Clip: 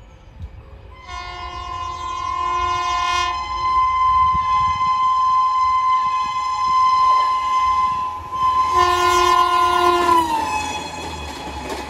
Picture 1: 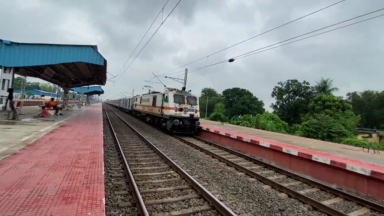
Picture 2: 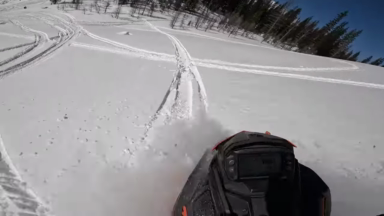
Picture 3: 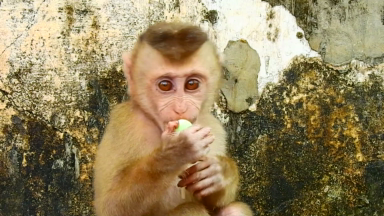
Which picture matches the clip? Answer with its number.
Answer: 1